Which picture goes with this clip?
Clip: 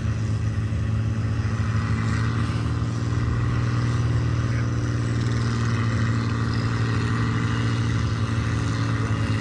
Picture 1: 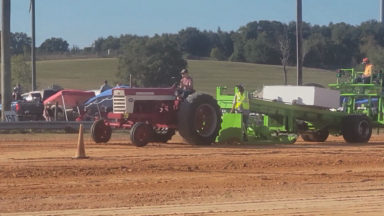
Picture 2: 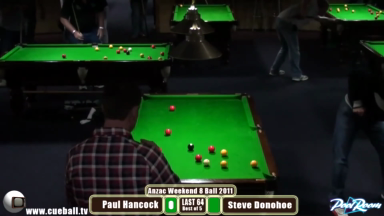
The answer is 1